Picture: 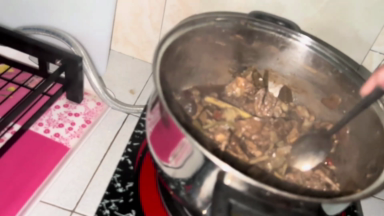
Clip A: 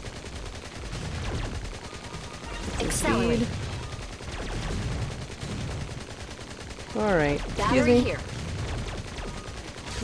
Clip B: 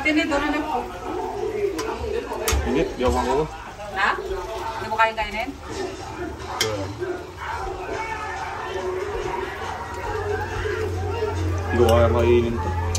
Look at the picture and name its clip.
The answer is B